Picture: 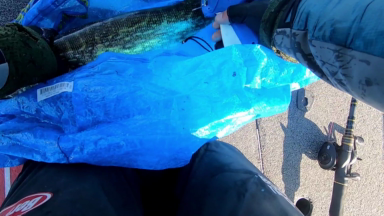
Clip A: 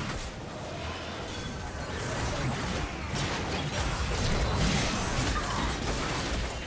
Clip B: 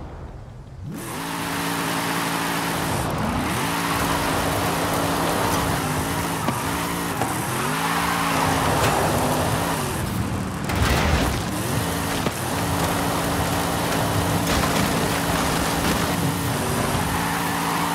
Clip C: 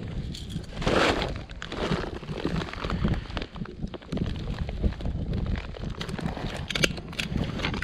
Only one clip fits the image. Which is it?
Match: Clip C